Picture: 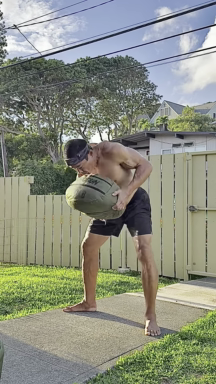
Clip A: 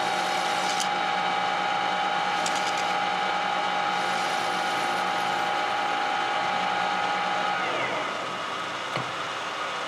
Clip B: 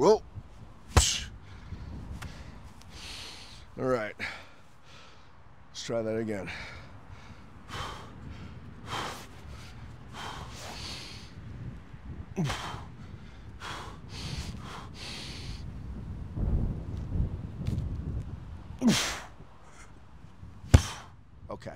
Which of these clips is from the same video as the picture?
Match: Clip B